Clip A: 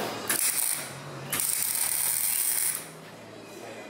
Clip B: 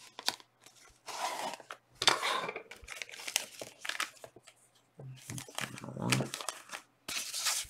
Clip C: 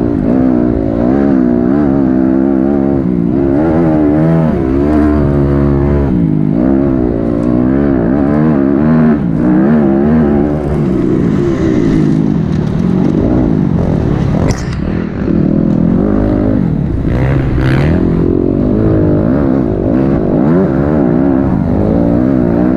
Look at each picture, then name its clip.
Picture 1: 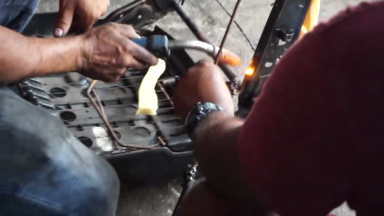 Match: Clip A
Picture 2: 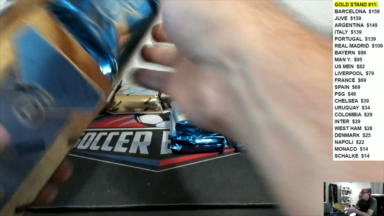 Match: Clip B